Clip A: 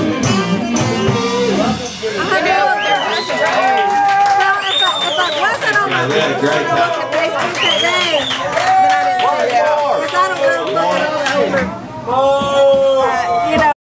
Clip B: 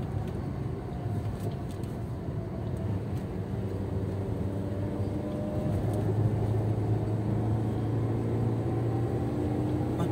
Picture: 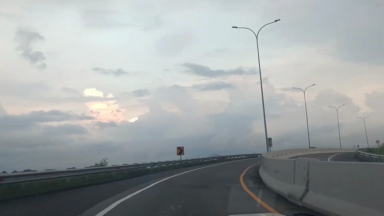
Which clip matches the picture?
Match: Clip B